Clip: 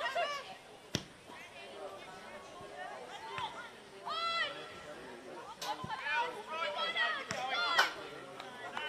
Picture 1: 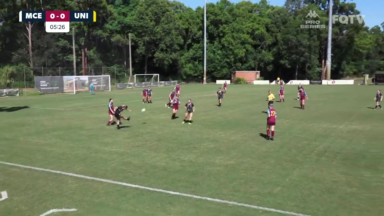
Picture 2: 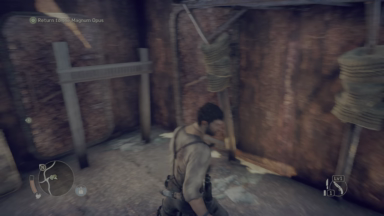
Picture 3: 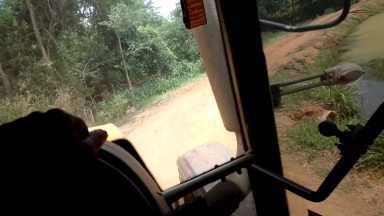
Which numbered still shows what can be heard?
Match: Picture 1